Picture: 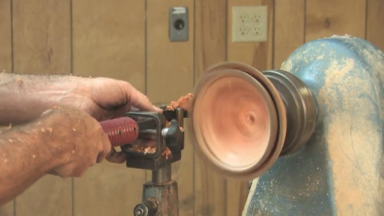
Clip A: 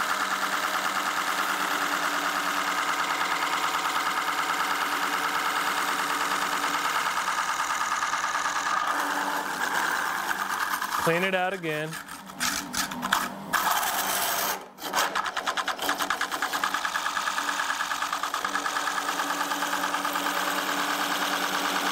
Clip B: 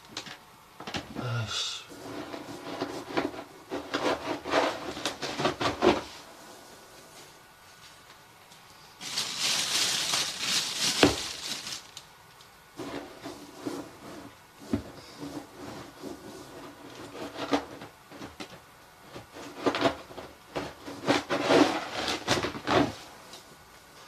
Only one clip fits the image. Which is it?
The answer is A